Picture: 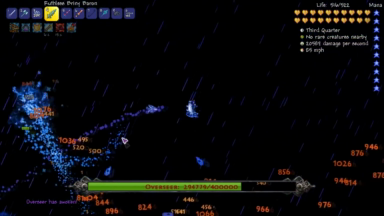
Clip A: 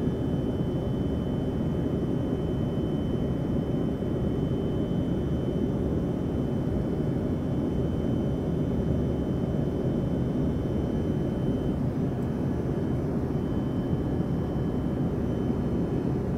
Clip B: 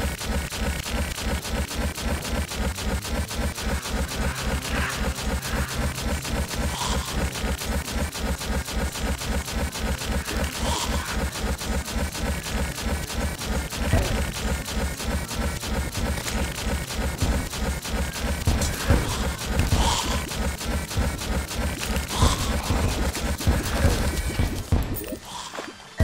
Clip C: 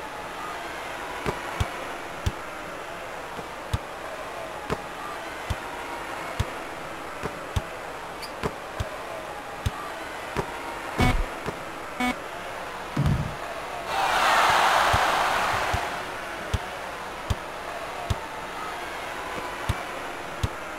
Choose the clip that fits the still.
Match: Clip B